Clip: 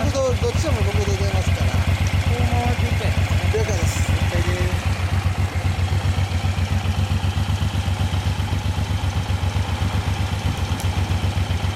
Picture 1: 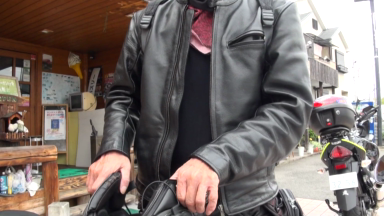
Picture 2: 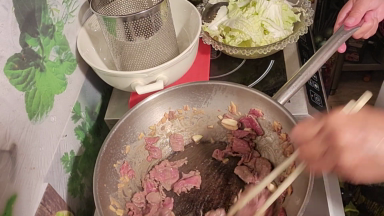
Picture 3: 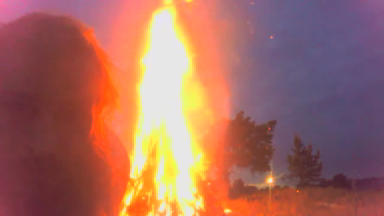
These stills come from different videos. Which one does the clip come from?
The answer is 1